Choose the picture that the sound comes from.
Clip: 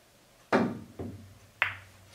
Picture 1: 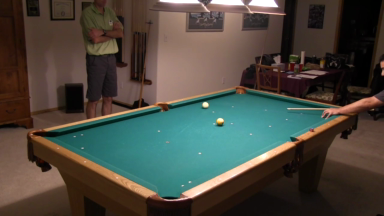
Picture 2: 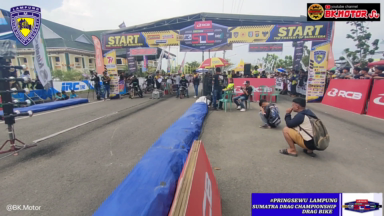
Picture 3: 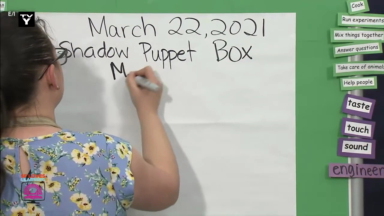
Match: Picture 1